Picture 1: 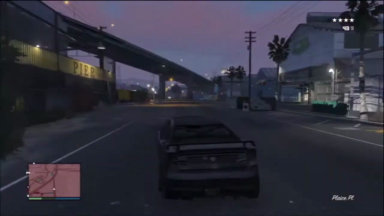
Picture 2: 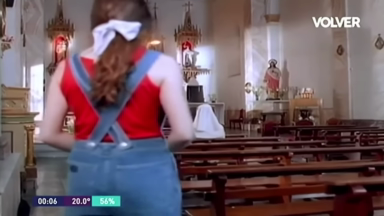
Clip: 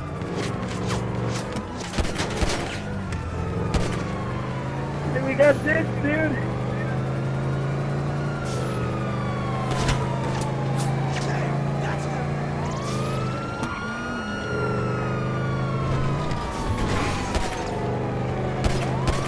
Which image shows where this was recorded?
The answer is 1